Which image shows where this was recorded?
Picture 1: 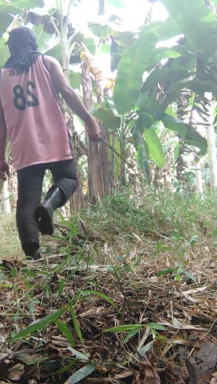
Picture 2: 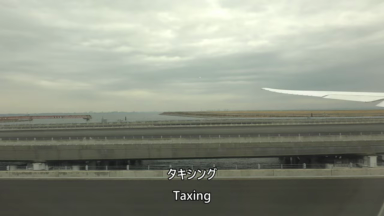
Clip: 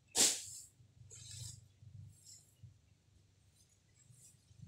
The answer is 1